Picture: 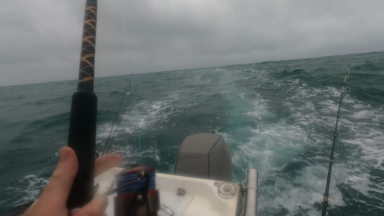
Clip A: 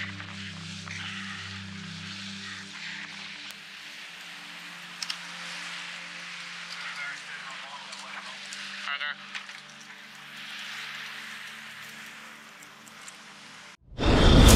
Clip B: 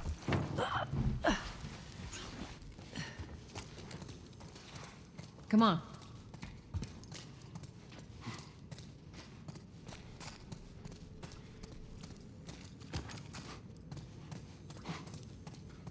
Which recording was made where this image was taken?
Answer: A